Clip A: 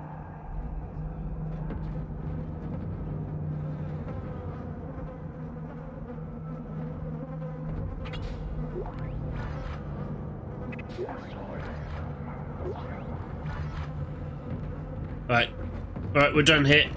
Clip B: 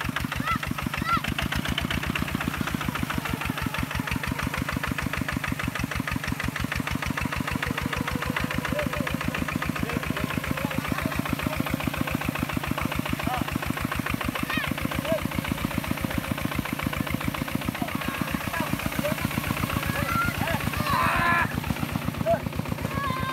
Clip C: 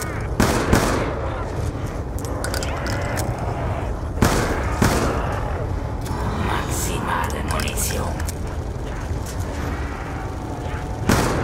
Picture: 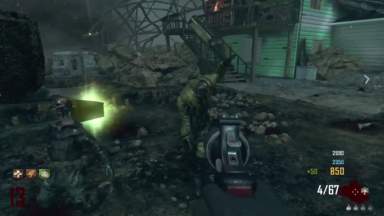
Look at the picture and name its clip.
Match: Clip C